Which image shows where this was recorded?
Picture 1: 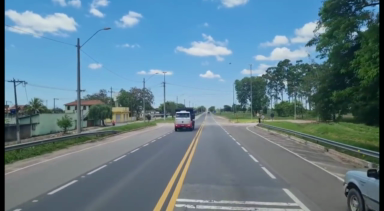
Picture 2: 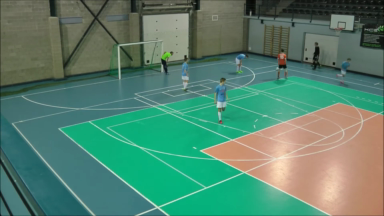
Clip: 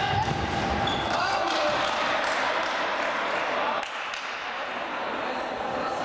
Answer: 2